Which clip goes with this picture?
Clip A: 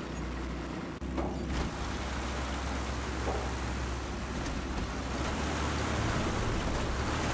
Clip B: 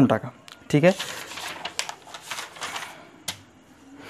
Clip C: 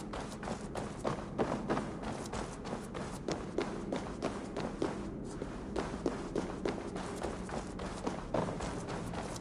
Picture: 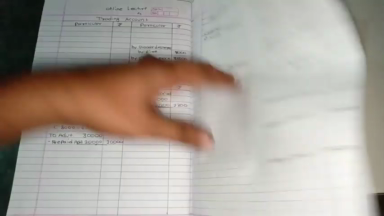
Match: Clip B